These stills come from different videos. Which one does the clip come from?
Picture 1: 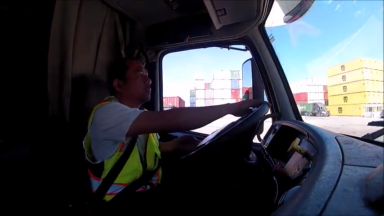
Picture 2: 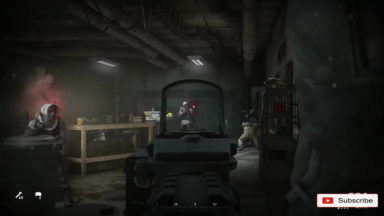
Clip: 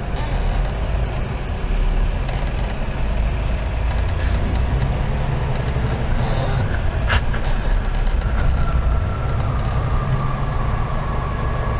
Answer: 1